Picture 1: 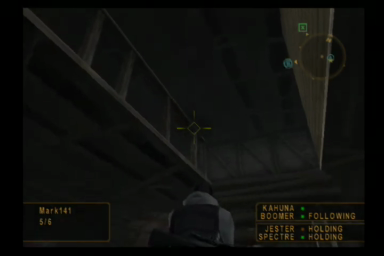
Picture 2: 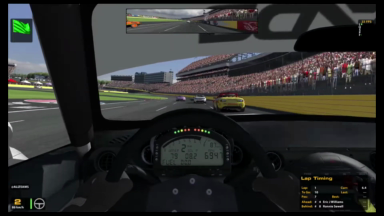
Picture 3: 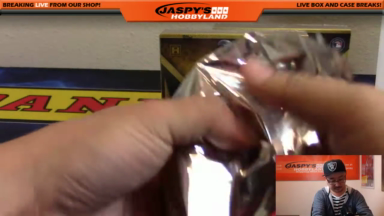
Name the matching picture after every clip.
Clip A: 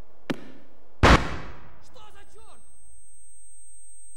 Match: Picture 1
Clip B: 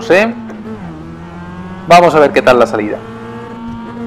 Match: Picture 2